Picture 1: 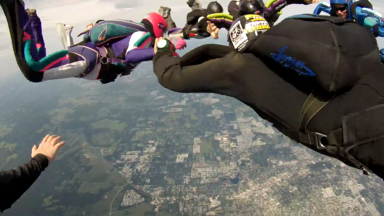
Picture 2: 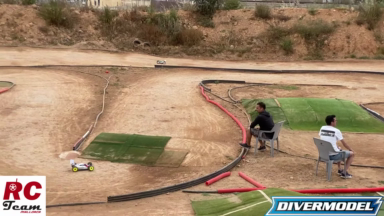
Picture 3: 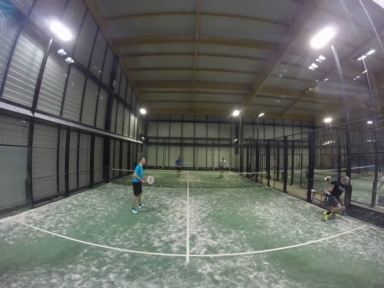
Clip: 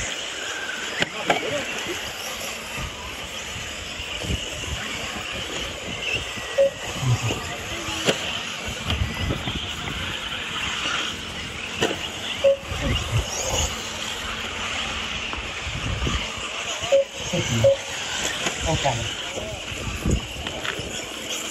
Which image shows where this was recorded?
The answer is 2